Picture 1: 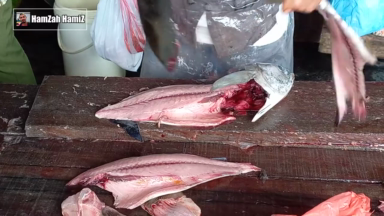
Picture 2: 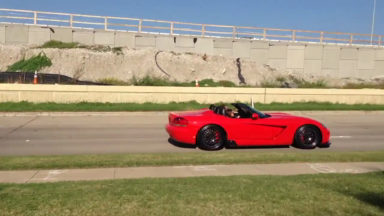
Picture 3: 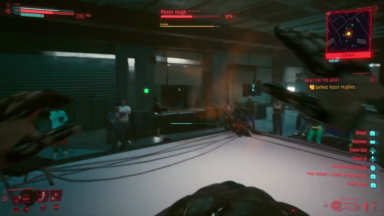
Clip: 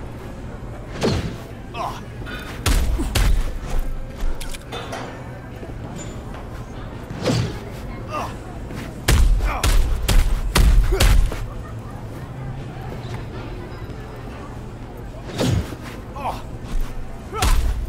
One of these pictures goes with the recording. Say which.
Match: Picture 3